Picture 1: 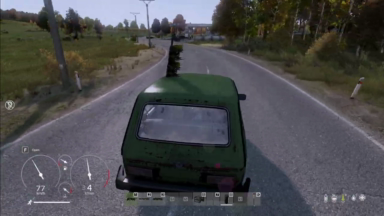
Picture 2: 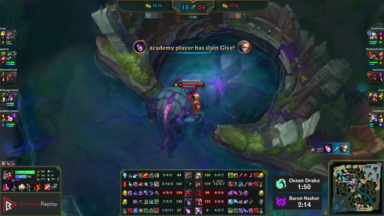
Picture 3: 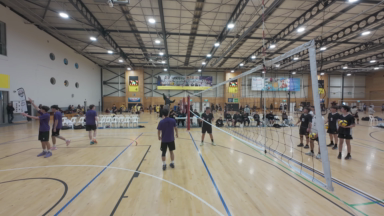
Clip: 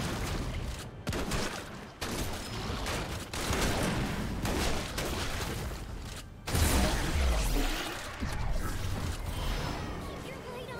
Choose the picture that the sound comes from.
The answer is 2